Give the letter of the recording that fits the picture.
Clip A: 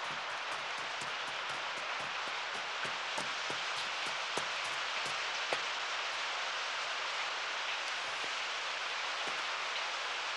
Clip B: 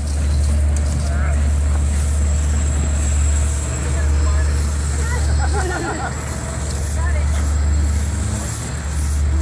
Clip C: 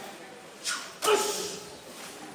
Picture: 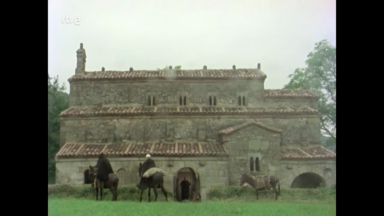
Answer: A